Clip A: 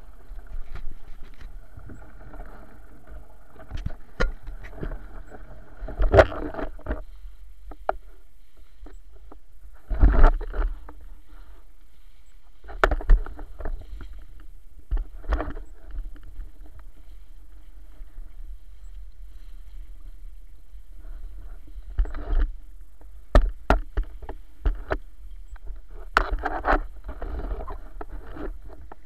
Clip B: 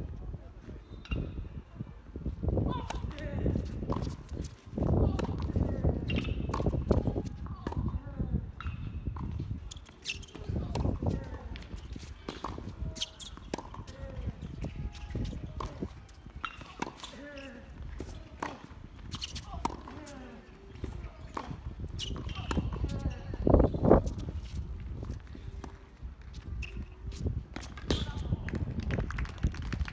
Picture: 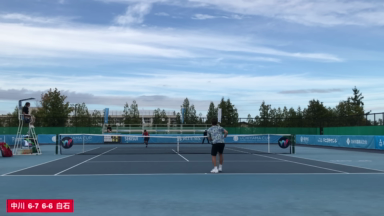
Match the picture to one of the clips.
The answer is B